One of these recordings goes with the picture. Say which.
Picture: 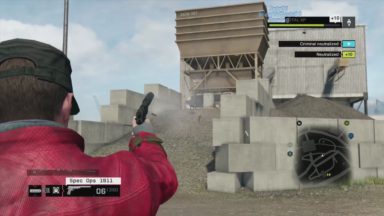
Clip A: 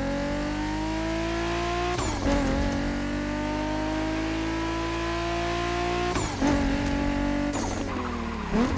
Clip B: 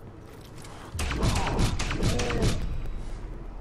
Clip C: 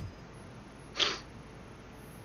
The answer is B